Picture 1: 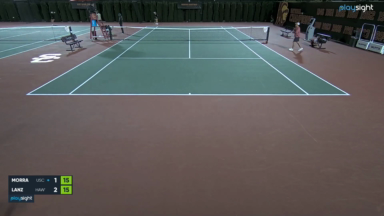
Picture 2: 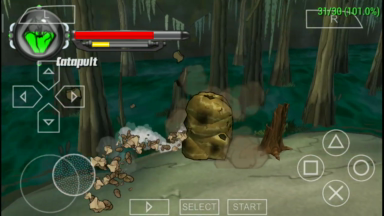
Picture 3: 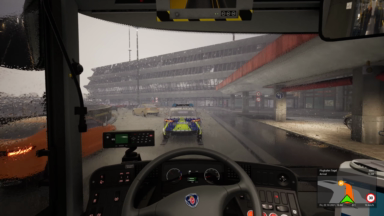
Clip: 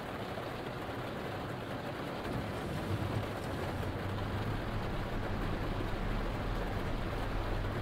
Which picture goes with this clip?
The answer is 3